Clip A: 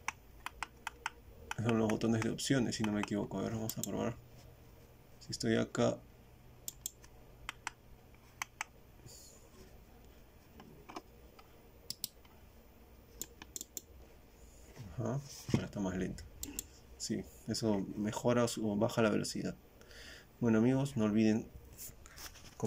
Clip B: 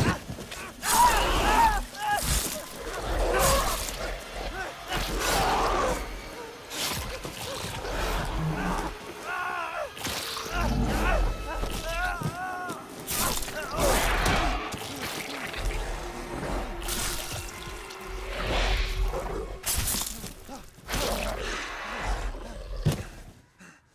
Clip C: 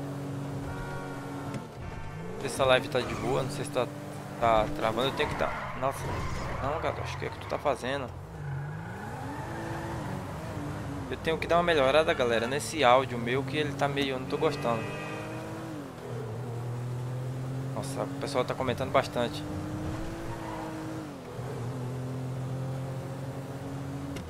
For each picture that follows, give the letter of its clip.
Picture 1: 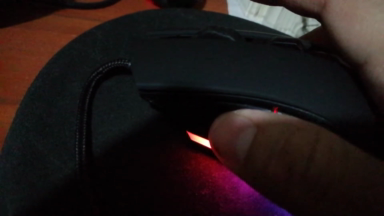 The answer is A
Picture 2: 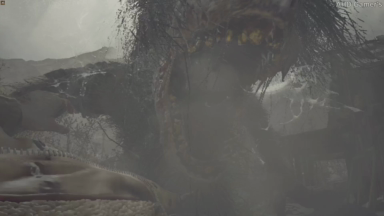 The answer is B